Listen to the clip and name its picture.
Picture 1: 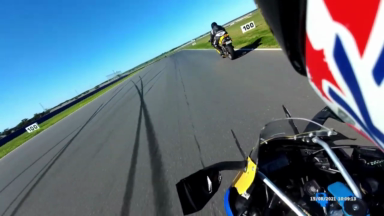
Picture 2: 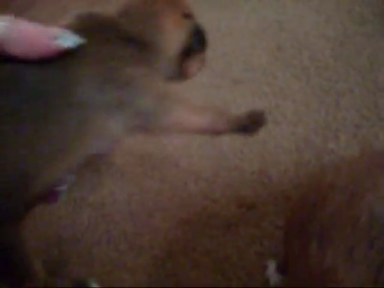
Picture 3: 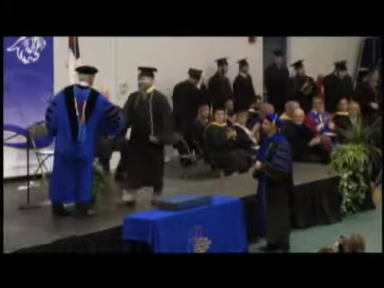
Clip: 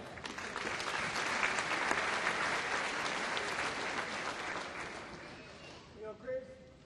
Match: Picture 3